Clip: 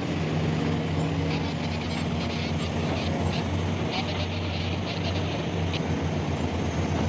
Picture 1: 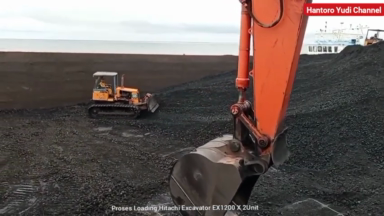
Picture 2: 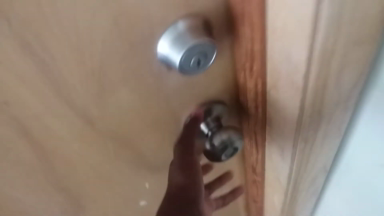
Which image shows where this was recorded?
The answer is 1